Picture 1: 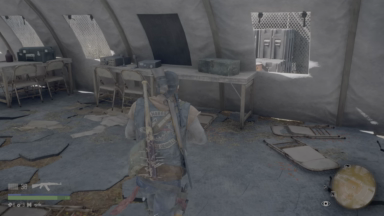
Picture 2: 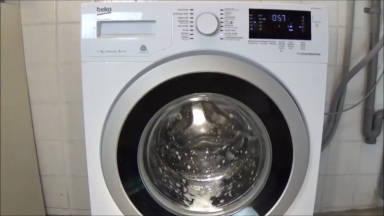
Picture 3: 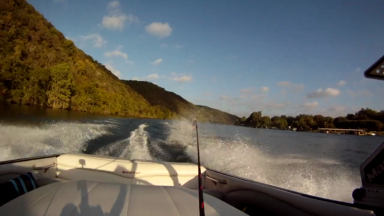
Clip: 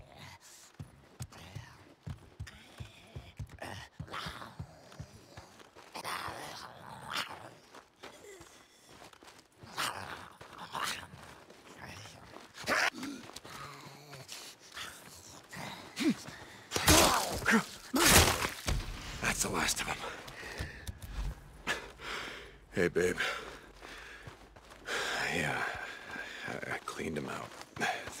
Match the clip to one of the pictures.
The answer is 1